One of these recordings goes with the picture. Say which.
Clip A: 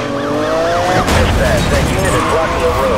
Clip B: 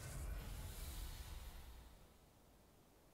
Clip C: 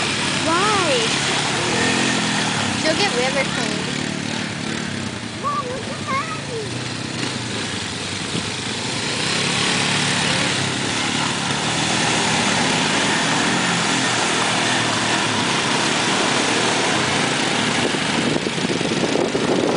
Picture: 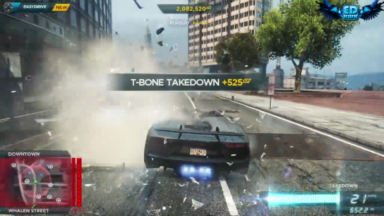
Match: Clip A